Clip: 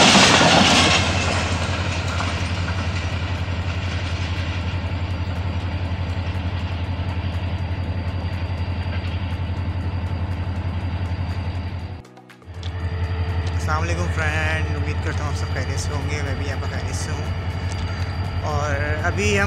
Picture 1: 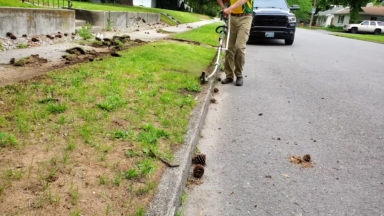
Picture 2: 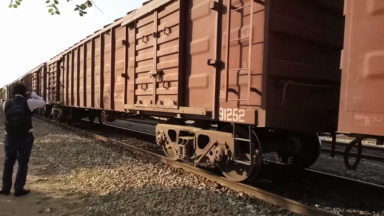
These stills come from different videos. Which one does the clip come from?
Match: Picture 2